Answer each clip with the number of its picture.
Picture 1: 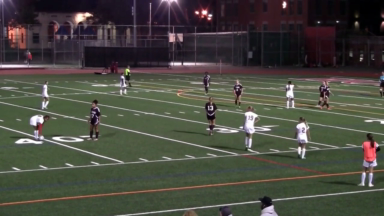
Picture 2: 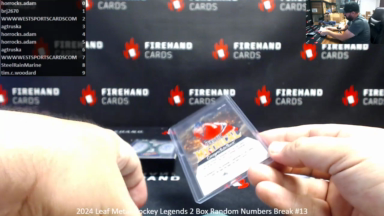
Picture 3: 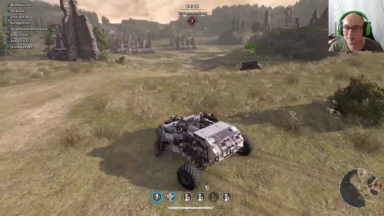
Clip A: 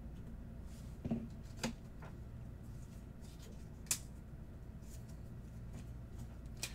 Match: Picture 2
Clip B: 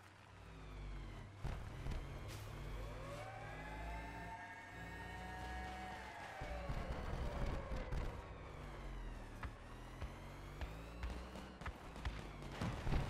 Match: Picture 3